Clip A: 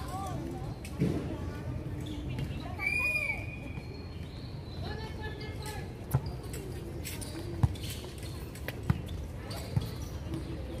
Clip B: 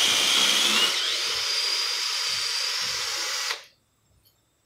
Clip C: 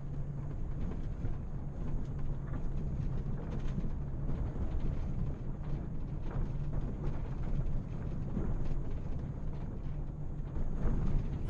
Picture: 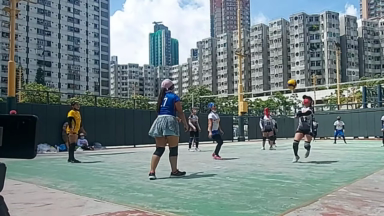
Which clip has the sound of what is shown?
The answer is A